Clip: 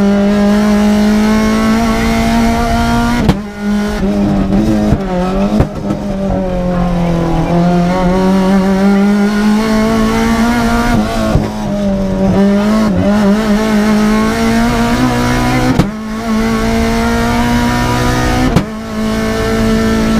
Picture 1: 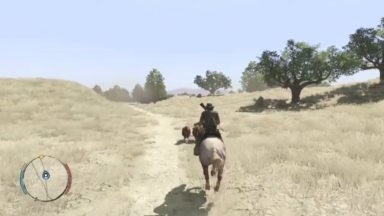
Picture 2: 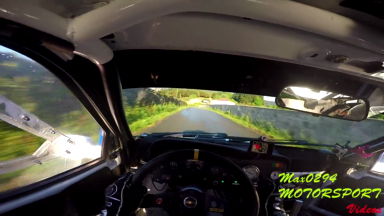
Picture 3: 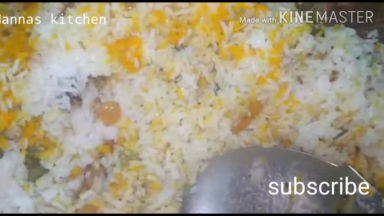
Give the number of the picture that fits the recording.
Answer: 2